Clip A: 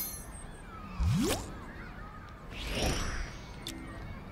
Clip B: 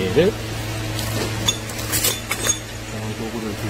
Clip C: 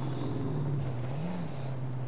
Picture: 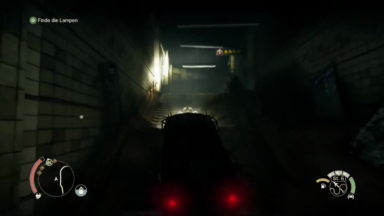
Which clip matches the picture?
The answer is C